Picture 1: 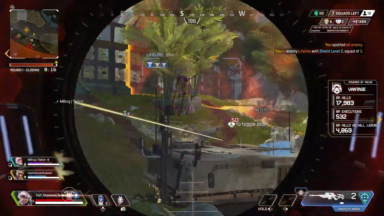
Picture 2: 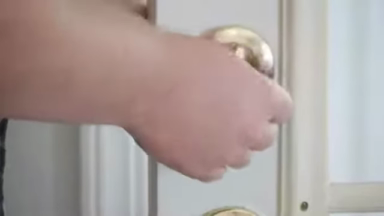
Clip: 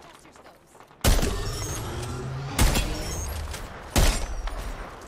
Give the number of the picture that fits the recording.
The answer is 1